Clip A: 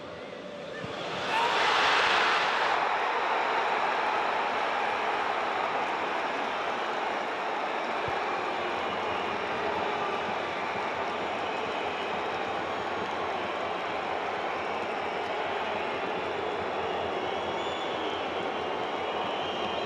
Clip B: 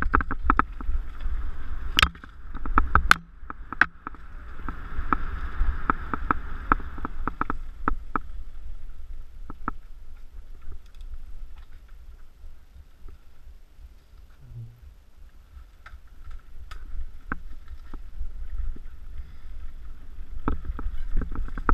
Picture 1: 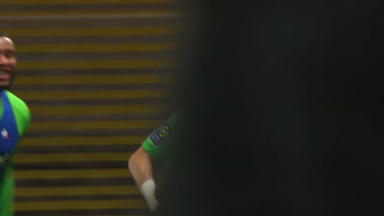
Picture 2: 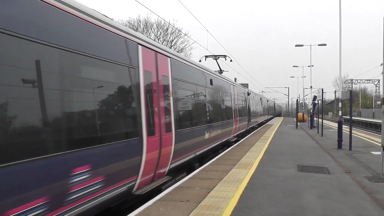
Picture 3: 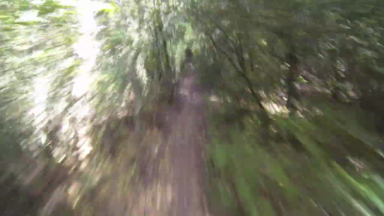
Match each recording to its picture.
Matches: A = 1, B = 3